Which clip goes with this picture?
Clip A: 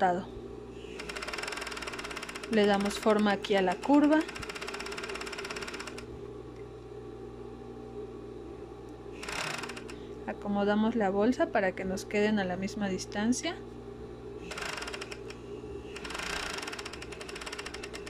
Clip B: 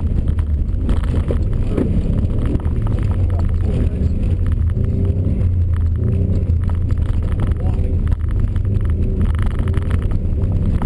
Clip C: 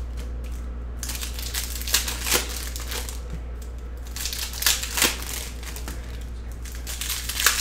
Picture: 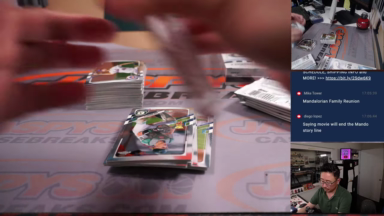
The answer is C